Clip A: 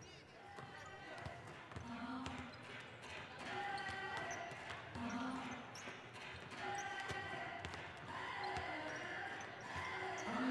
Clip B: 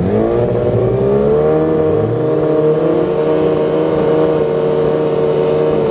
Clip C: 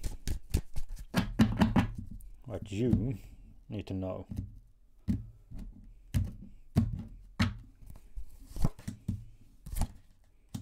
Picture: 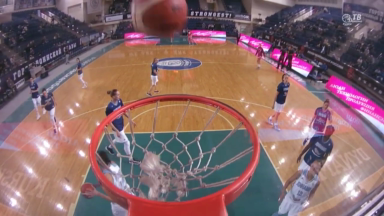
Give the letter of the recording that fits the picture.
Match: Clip A